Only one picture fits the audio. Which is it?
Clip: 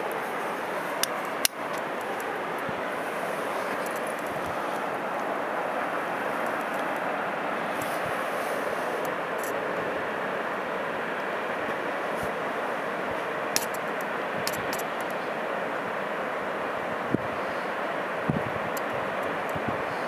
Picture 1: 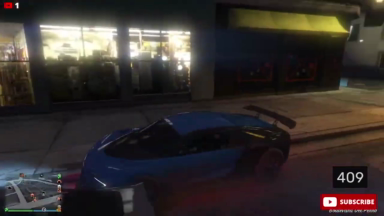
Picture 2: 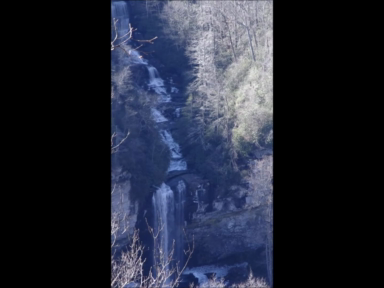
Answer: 2